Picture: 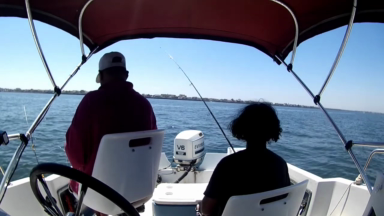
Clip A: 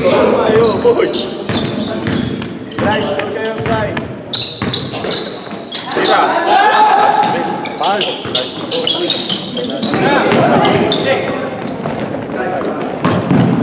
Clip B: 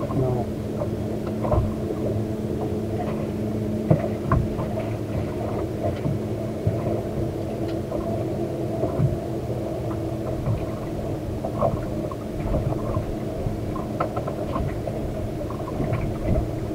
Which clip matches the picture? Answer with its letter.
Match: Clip B